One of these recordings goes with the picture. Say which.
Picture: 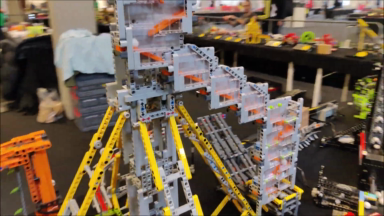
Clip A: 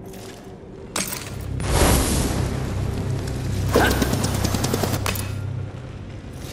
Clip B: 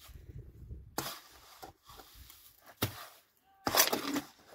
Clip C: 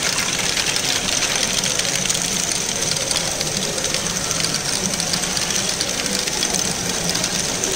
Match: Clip C